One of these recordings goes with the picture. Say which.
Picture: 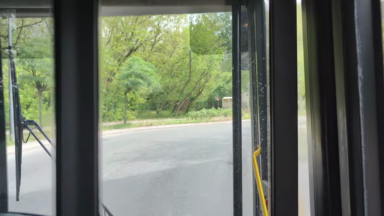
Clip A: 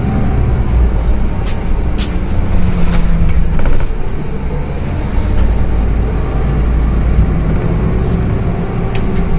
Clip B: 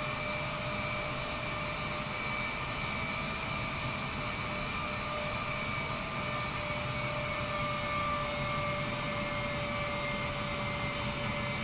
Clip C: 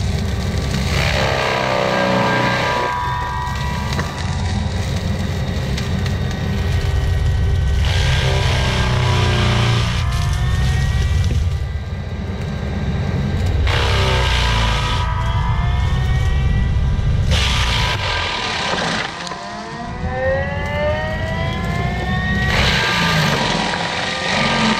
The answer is A